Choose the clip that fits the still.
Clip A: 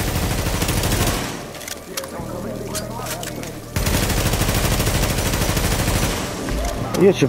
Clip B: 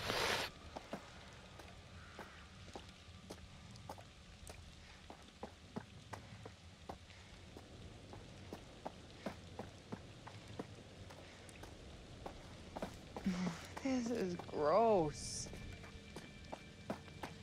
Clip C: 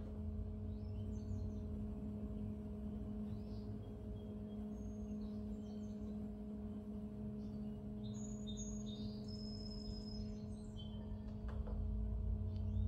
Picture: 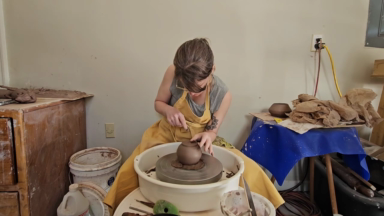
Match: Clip C